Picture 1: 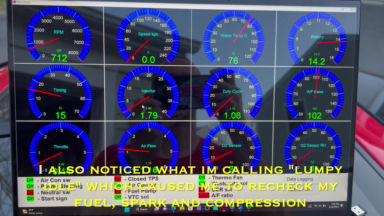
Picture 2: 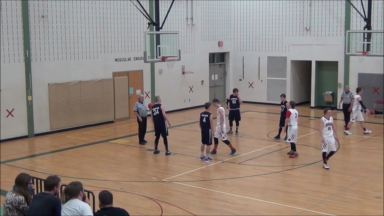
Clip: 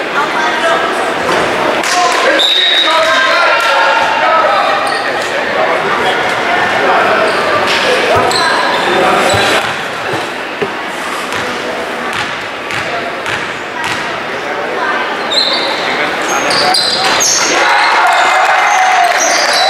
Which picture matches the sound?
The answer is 2